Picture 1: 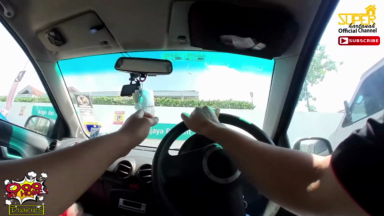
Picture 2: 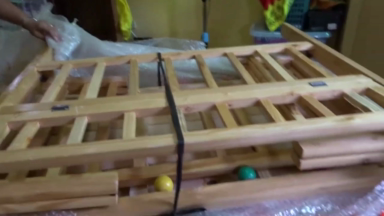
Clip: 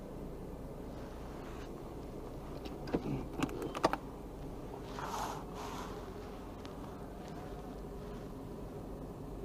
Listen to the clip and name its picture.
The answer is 1